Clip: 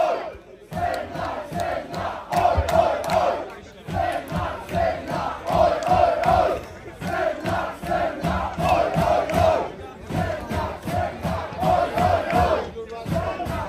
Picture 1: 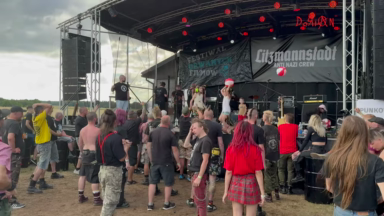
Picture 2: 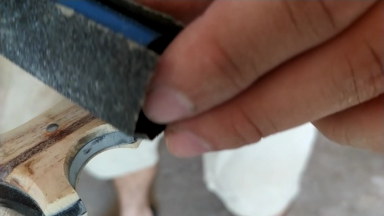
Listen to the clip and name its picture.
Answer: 1